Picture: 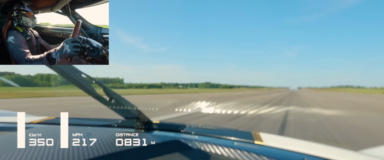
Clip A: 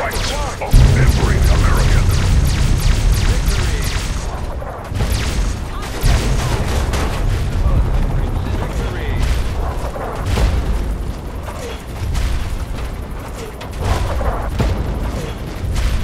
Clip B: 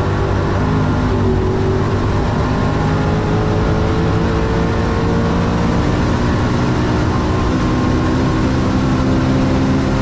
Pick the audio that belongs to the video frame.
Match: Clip B